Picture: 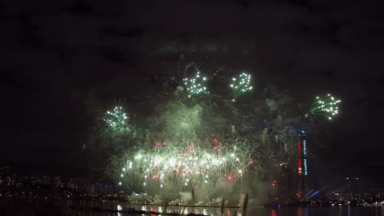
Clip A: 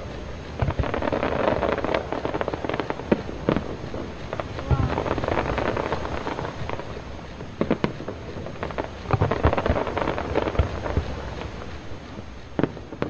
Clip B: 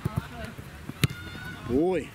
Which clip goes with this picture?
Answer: A